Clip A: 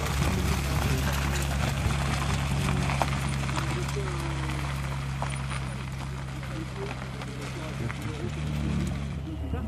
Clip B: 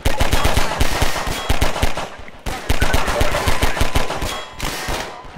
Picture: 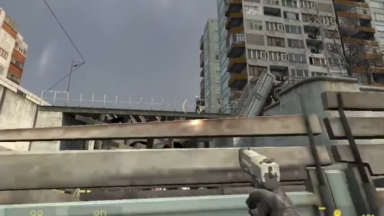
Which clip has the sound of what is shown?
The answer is B